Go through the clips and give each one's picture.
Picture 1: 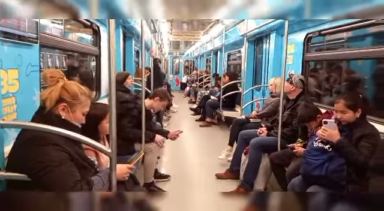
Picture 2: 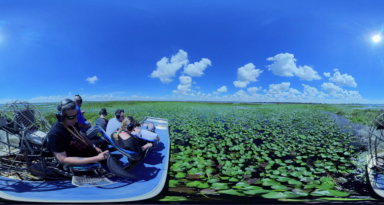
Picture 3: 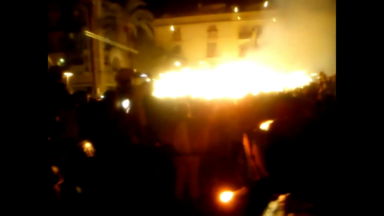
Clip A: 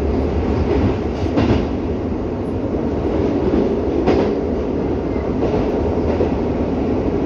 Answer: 1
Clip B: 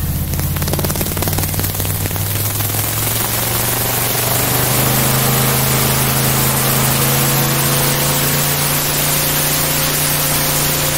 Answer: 2